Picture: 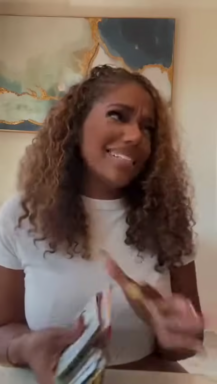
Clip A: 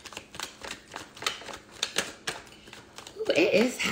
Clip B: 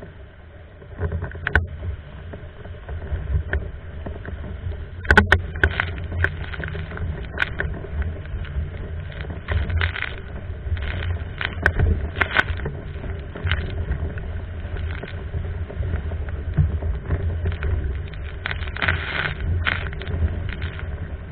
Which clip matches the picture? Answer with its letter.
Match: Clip A